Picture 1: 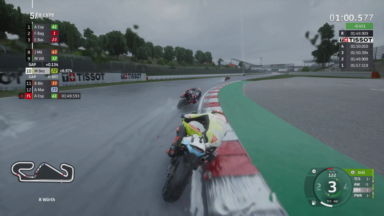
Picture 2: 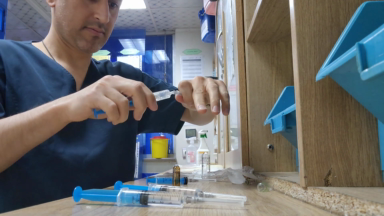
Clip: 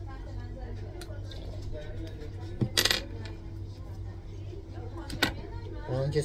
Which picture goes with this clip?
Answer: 2